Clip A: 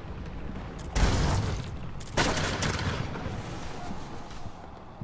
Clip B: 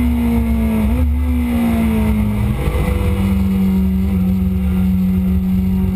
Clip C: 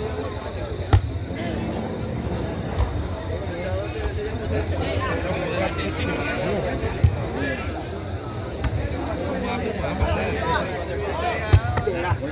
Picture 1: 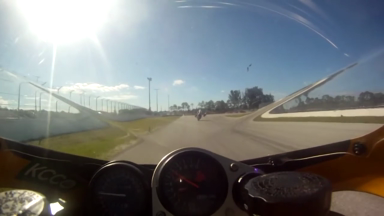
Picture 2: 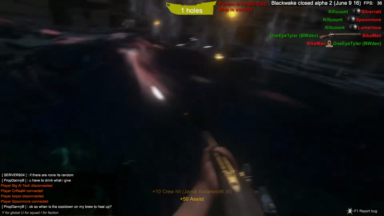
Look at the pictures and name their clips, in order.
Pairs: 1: B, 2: A